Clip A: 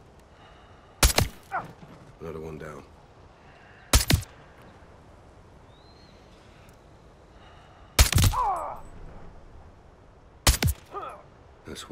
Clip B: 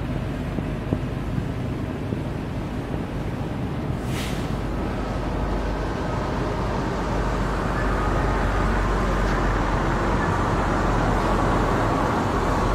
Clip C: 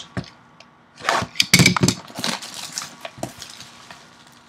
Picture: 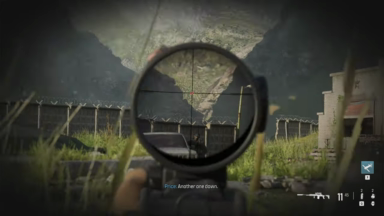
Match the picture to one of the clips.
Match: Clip A